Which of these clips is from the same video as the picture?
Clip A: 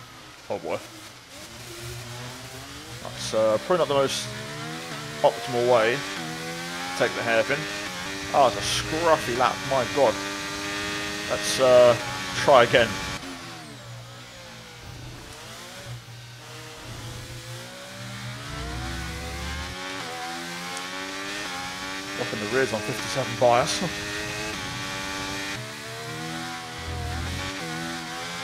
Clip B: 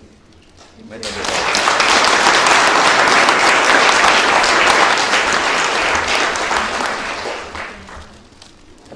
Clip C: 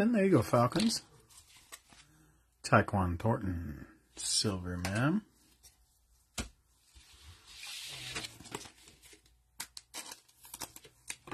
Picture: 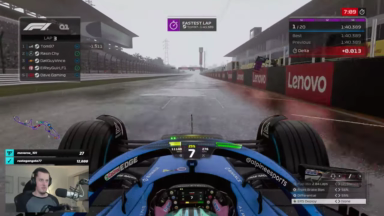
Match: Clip A